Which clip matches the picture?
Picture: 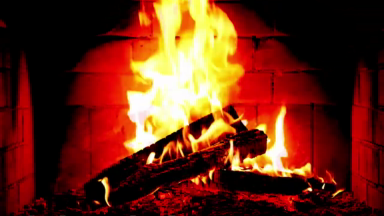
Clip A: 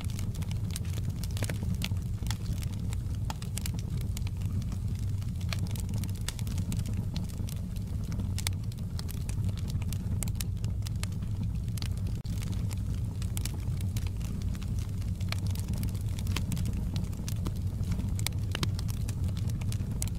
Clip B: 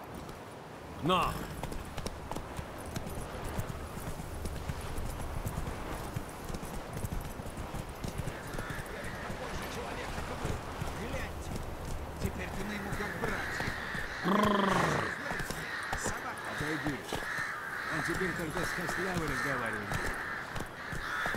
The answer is A